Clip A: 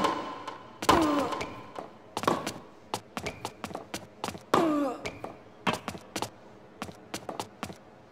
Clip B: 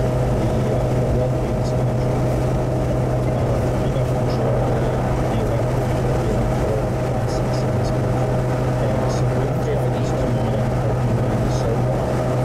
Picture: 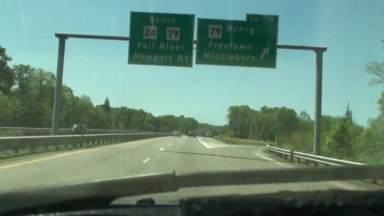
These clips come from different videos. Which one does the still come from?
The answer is B